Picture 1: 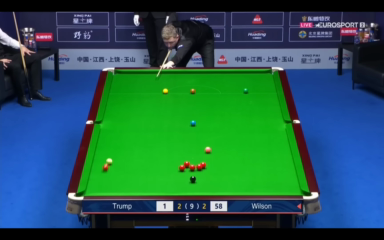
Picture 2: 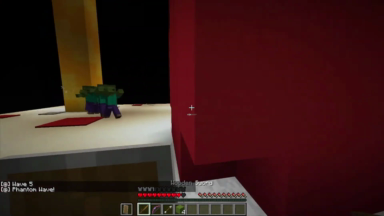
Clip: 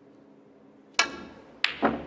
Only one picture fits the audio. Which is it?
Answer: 1